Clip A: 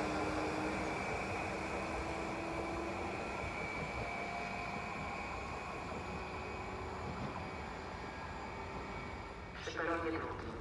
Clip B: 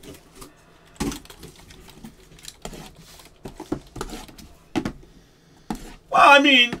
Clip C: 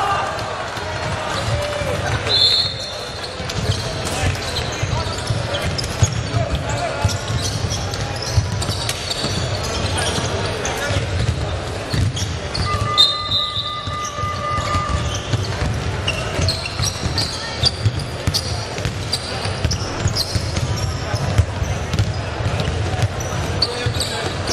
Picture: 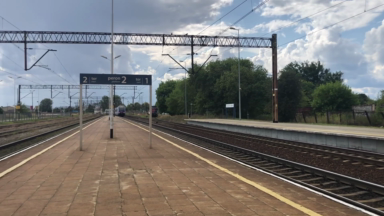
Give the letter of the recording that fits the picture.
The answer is A